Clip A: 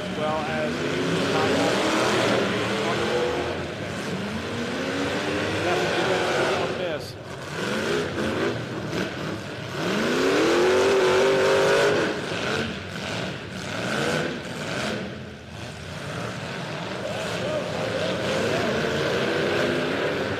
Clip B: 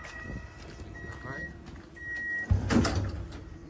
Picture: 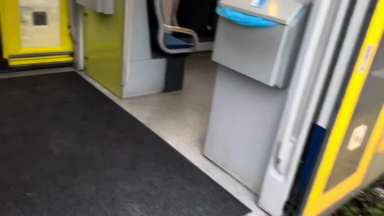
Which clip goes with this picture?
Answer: B